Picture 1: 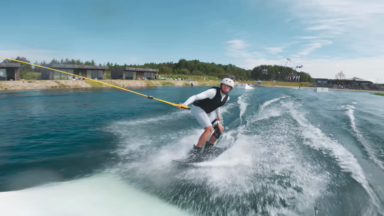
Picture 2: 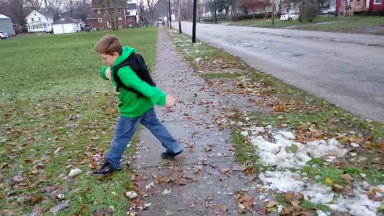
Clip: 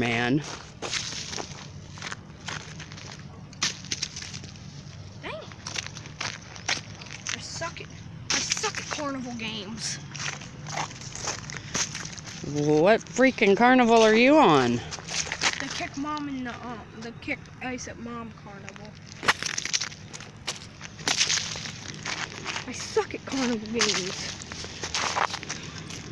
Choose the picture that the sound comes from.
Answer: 2